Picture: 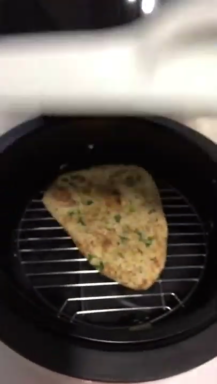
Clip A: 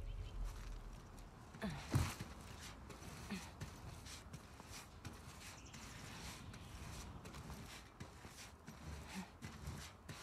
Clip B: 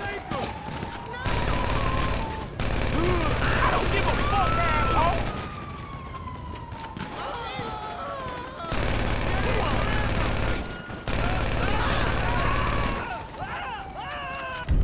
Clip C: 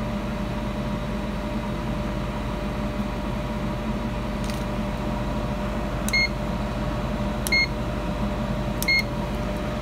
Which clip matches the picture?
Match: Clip C